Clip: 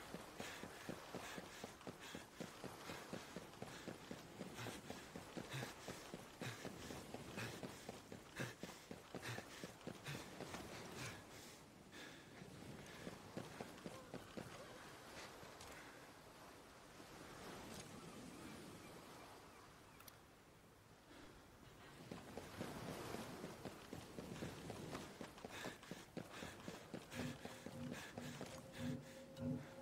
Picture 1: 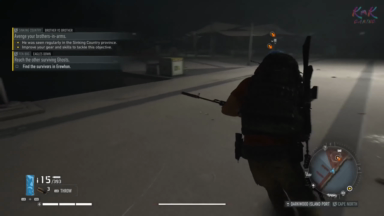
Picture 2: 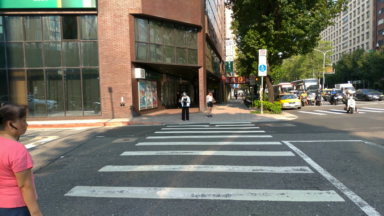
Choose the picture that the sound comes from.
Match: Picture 1